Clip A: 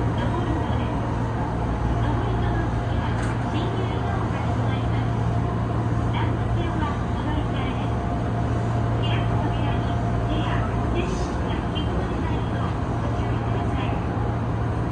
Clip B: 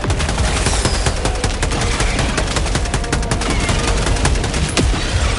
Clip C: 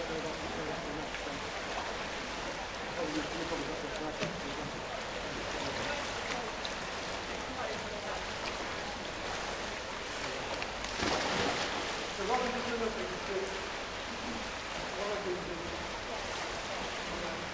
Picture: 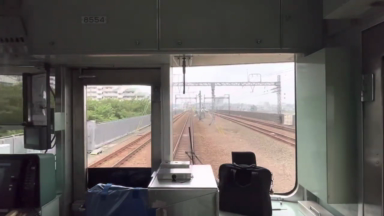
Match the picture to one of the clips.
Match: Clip A